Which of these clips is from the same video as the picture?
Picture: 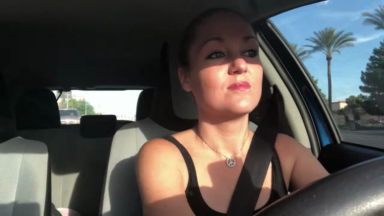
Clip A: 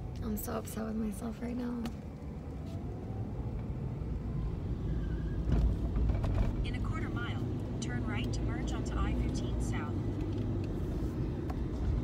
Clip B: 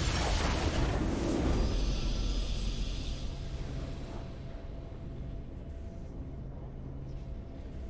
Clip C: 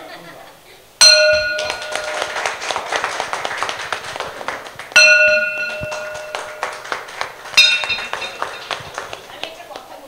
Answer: A